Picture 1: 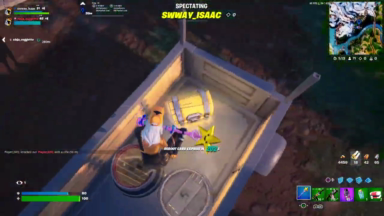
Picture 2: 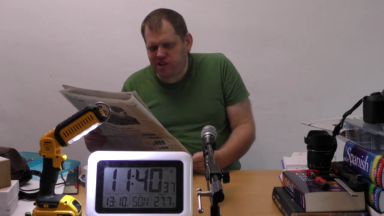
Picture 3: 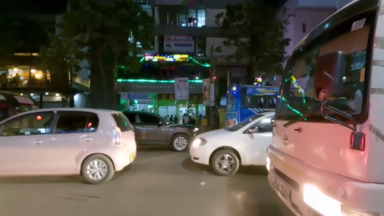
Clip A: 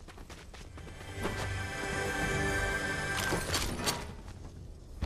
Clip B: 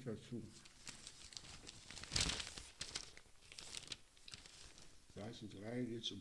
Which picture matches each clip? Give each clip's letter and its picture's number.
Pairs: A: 1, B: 2